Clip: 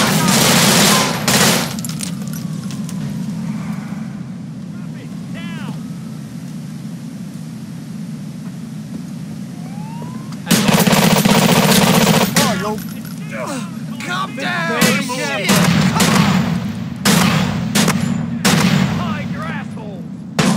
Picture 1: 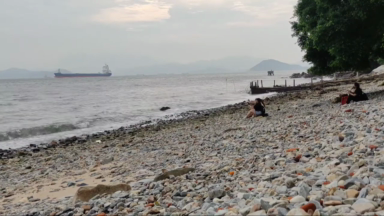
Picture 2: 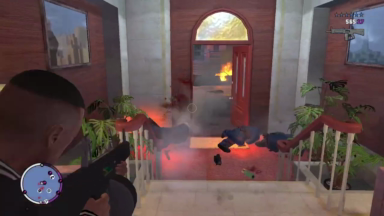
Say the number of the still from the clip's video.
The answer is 2